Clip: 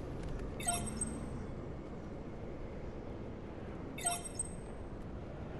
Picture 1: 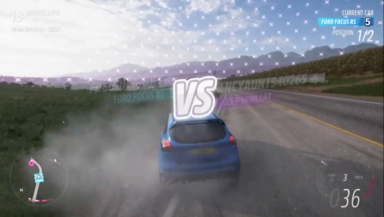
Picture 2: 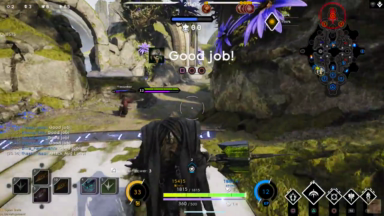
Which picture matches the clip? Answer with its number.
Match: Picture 2